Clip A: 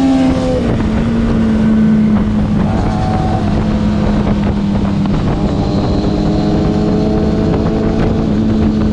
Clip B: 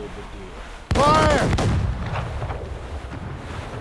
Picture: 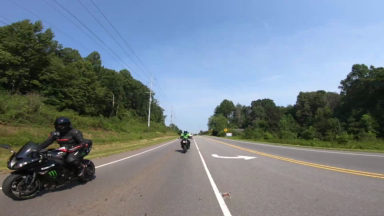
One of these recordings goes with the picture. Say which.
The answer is A